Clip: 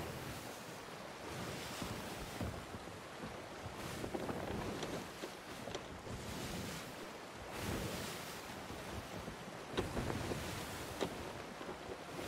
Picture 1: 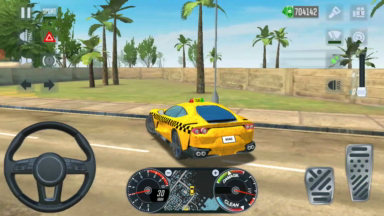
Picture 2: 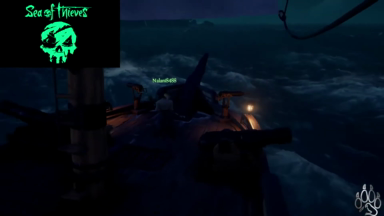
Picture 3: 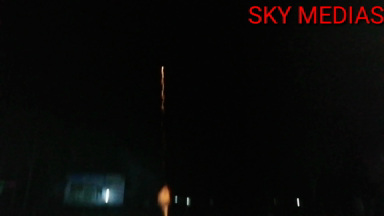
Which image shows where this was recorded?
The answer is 2